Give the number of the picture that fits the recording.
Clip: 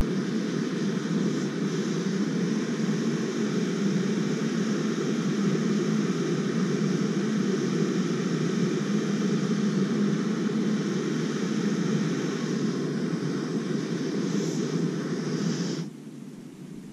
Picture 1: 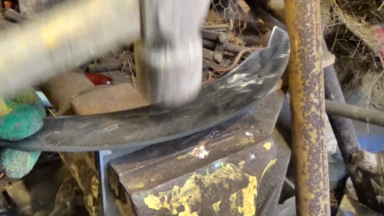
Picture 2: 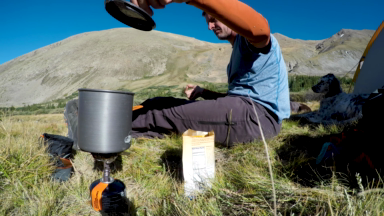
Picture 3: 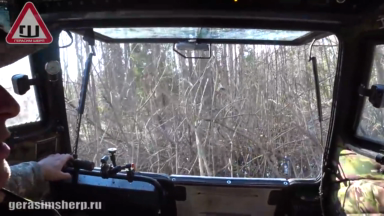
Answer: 2